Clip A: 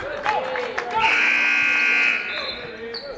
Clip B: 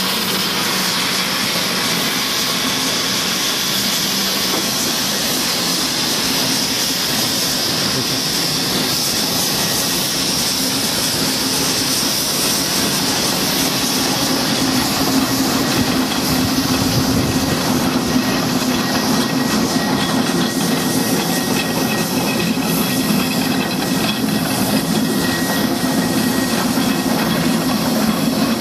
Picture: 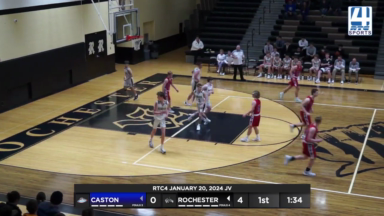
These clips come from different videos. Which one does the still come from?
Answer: A